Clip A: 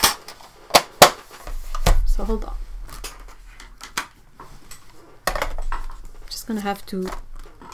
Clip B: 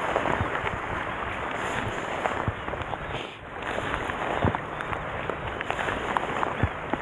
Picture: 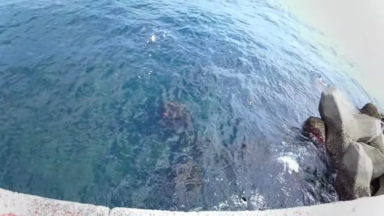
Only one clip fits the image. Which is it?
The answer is B